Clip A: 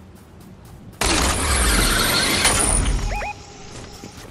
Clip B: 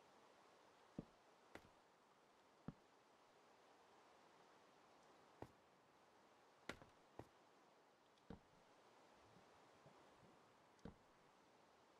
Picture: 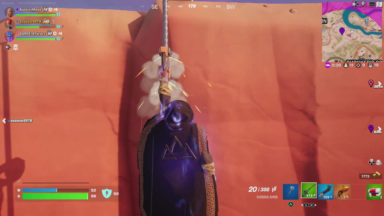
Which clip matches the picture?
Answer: A